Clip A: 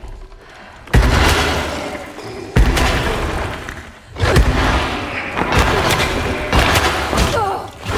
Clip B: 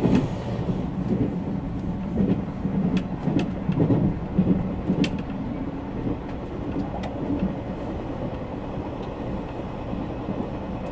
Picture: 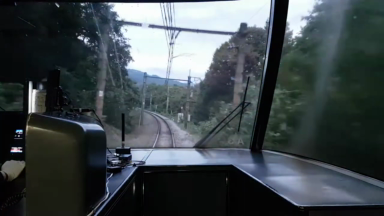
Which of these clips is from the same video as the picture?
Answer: B